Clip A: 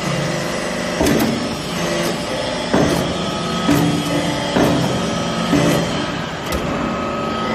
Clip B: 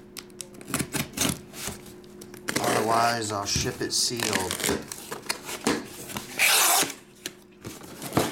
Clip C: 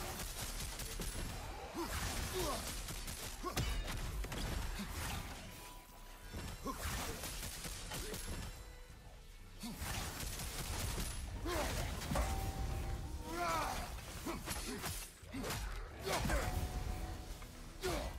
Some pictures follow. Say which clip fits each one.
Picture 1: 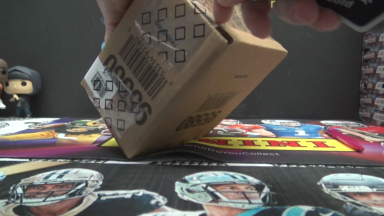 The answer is B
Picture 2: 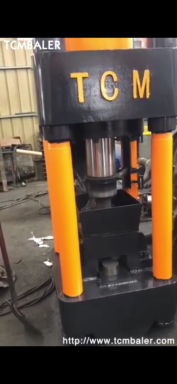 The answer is A